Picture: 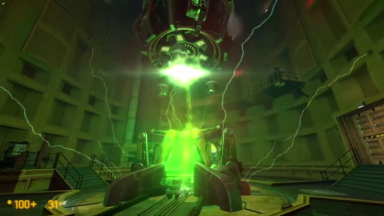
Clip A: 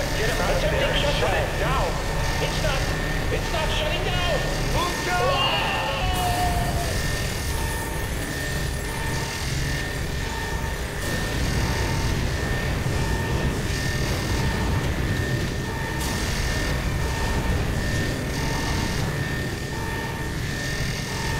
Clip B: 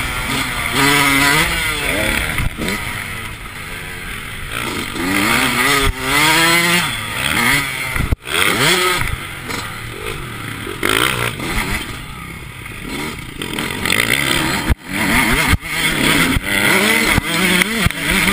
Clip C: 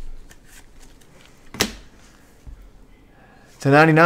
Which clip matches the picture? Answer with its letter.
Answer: A